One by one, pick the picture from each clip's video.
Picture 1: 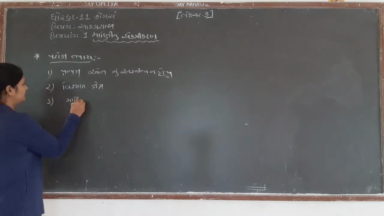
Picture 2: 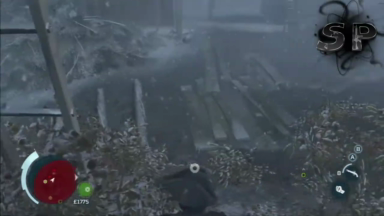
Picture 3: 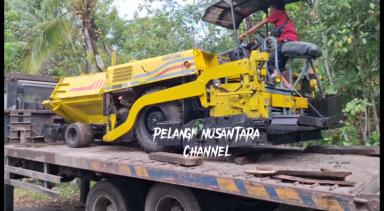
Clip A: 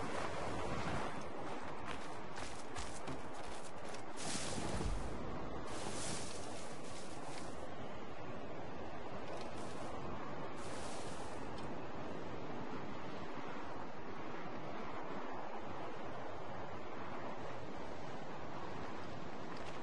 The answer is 2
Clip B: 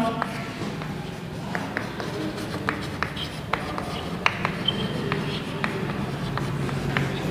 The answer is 1